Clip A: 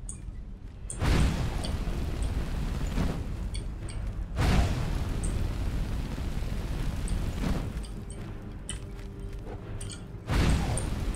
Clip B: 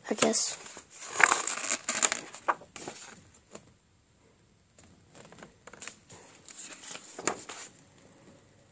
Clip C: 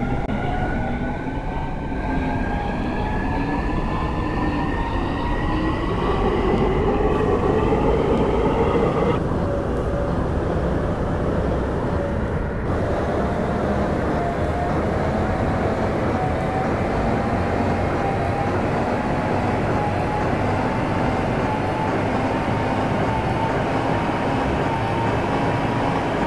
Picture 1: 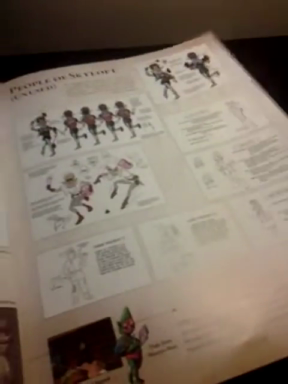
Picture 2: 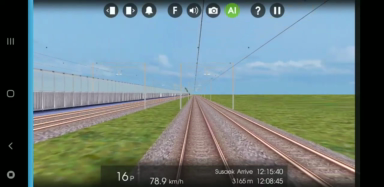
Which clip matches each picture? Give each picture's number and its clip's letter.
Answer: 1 B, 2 C